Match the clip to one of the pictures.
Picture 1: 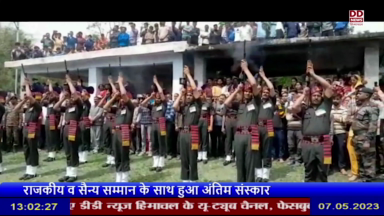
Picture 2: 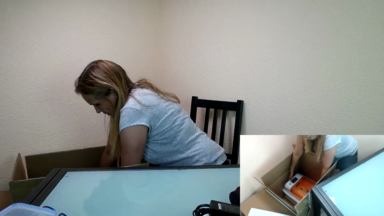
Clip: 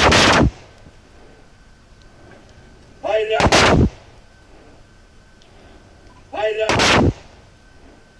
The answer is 1